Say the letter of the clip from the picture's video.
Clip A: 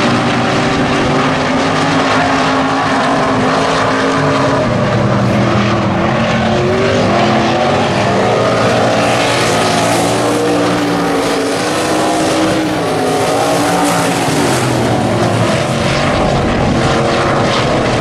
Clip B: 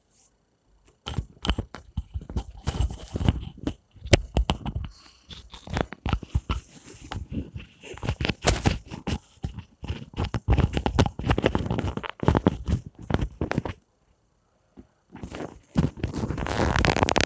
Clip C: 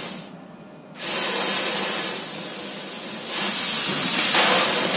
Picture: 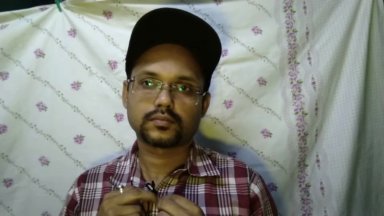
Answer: B